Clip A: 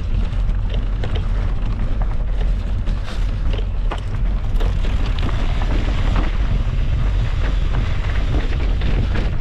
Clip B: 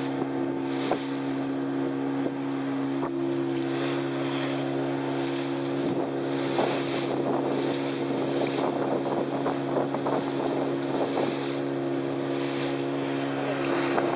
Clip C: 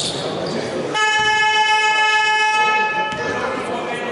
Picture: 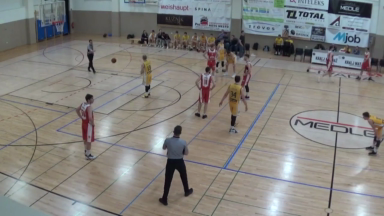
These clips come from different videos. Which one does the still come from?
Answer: C